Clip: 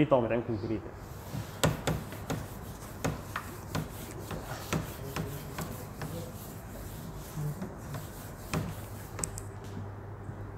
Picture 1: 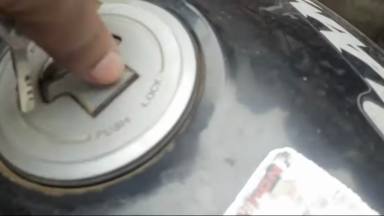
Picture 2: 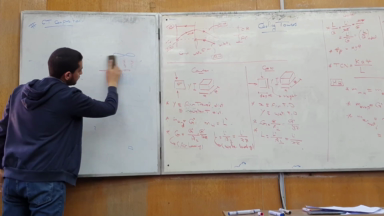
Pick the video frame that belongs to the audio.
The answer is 2